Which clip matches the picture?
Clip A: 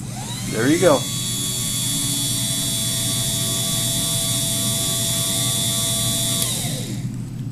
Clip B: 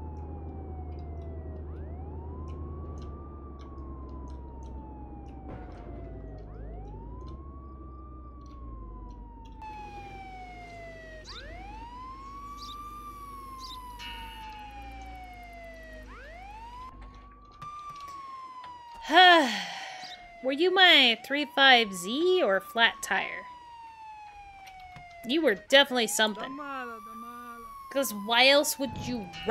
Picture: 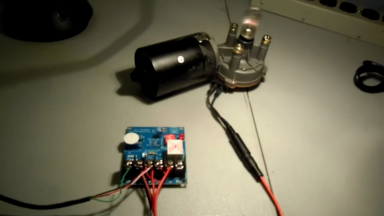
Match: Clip A